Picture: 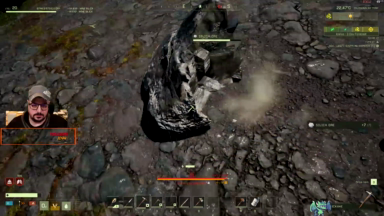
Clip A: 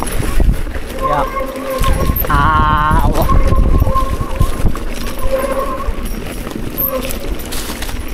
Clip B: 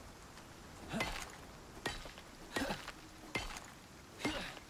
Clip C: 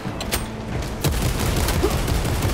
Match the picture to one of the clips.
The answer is B